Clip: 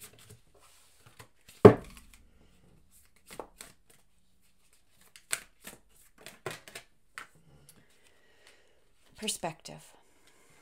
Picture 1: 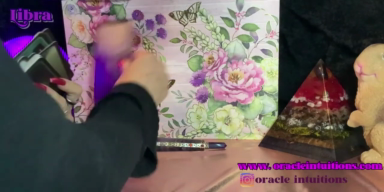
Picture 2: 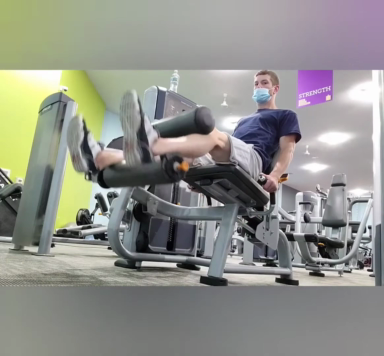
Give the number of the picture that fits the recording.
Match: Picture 1